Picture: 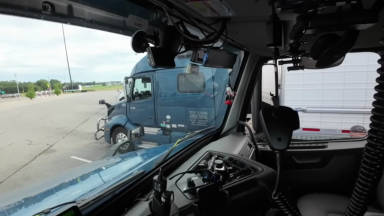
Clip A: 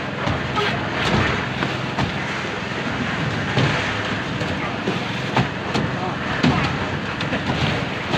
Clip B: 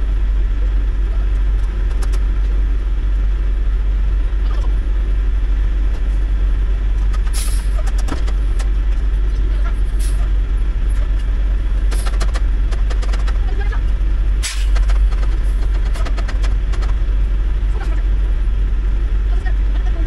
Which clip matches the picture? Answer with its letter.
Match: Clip B